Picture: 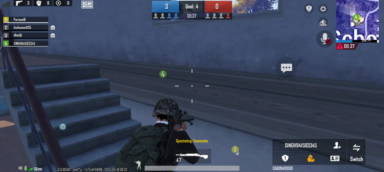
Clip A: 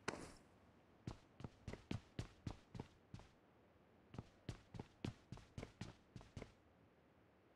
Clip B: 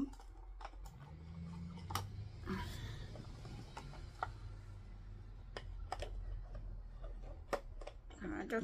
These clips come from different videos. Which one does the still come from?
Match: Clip A